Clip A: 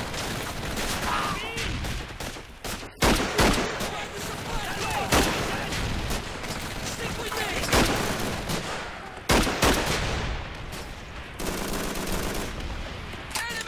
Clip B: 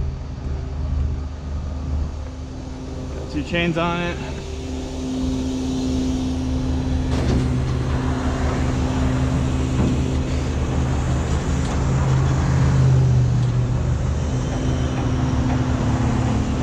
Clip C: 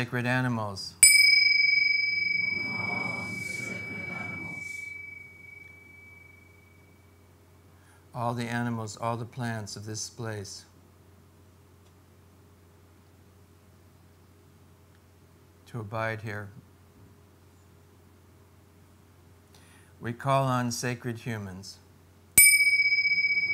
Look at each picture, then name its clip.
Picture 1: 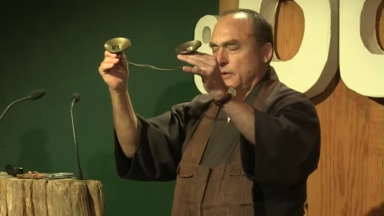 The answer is C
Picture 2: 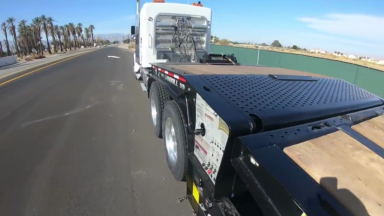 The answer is B